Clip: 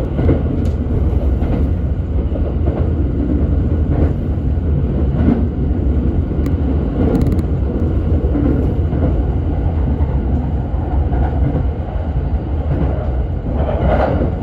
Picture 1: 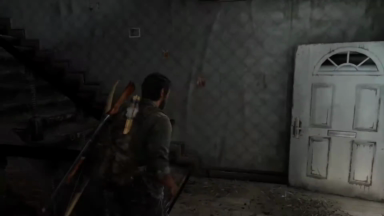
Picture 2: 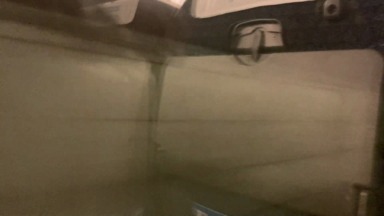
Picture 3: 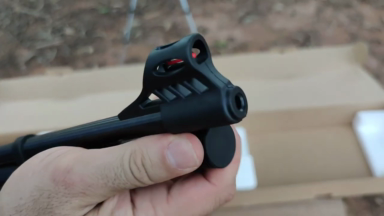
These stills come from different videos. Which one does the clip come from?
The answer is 2